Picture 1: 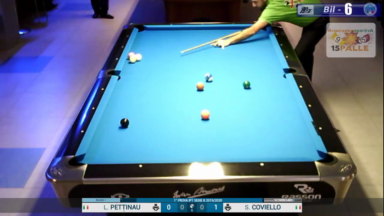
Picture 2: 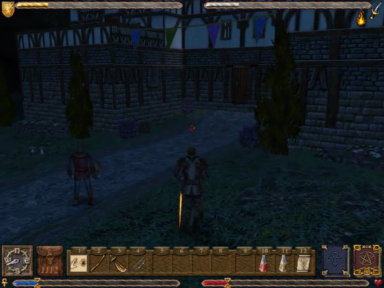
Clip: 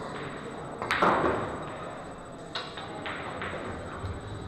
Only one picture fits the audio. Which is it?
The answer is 1